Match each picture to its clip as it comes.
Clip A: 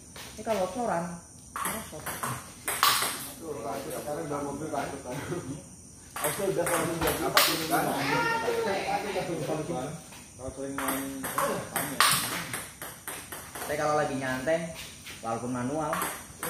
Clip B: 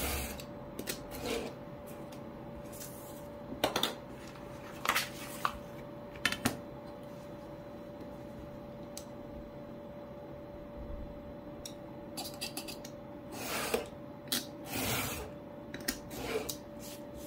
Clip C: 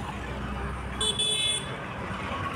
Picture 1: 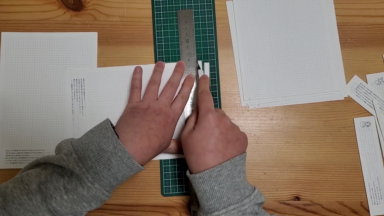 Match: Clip B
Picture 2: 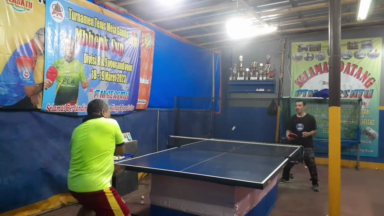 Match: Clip A